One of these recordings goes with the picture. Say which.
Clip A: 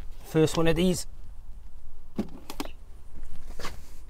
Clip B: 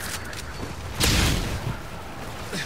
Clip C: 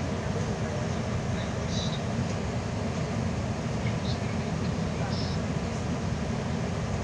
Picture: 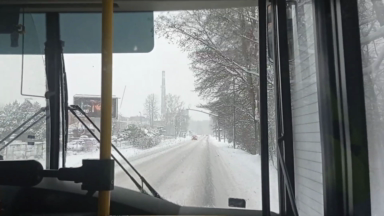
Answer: C